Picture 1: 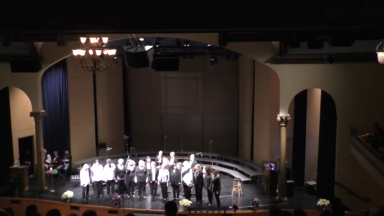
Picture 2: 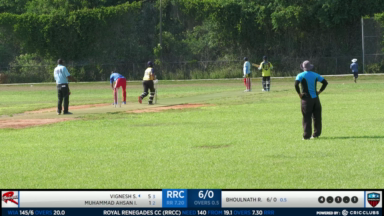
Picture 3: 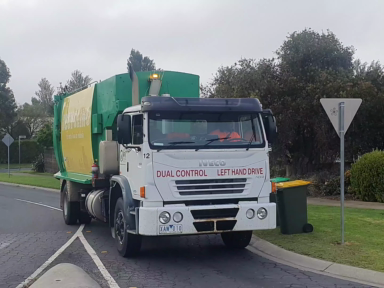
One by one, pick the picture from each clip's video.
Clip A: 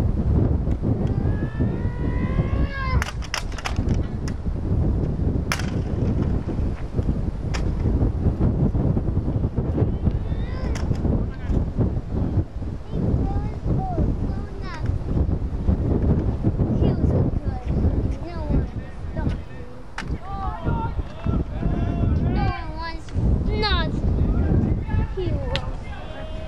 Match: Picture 2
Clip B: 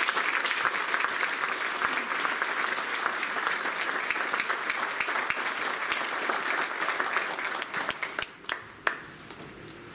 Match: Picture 1